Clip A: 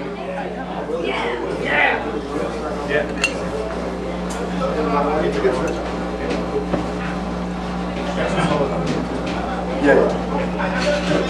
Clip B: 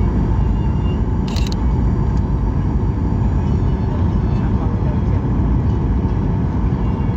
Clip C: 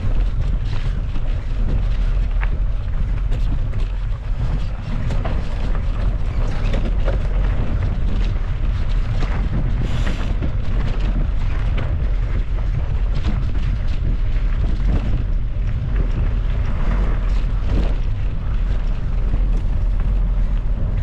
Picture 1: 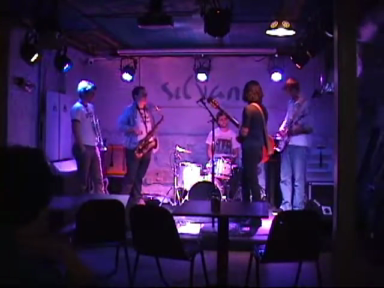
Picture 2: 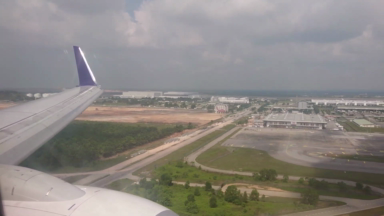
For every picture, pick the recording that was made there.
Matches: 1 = A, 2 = B